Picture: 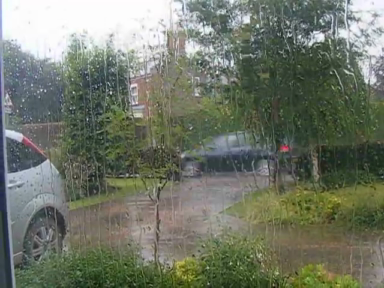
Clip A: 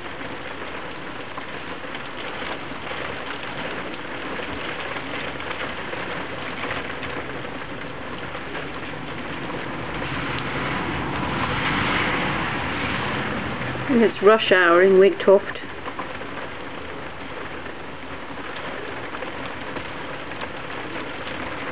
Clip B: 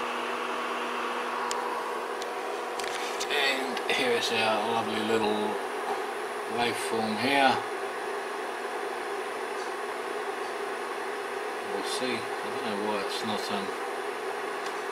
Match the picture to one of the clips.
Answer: A